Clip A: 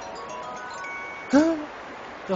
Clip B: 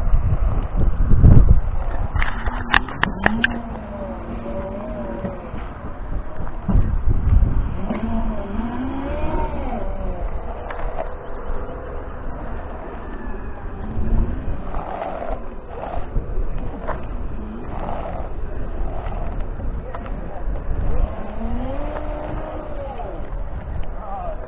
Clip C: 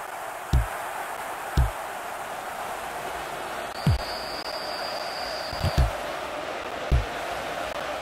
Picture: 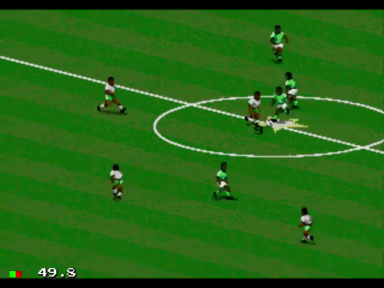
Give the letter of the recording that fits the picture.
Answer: C